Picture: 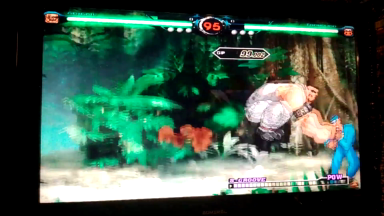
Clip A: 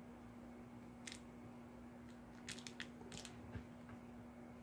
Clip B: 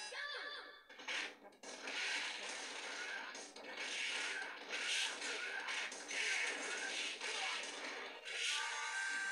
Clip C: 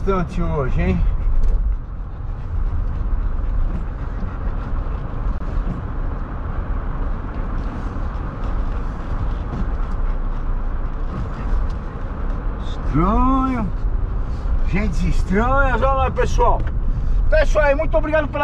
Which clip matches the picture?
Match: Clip B